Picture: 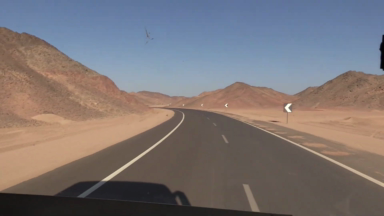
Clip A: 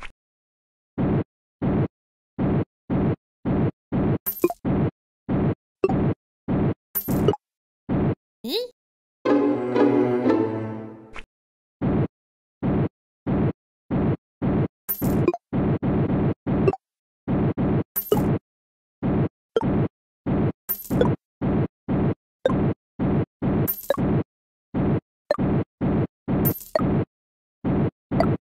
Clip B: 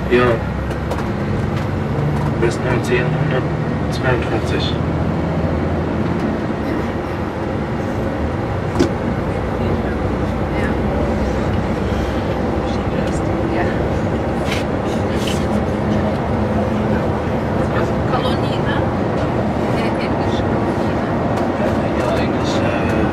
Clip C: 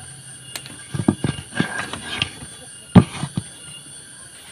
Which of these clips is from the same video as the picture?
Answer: B